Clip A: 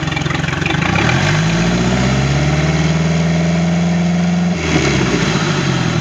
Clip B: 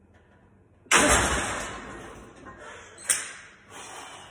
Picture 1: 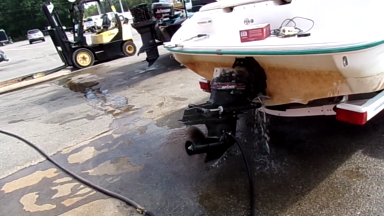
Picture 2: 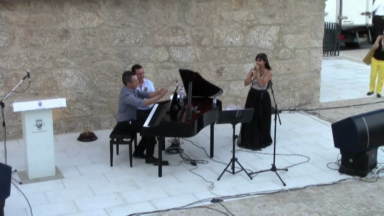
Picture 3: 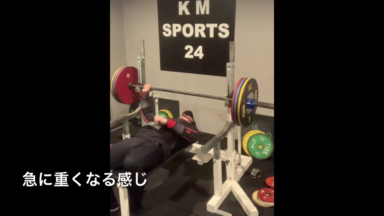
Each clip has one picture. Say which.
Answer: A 1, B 3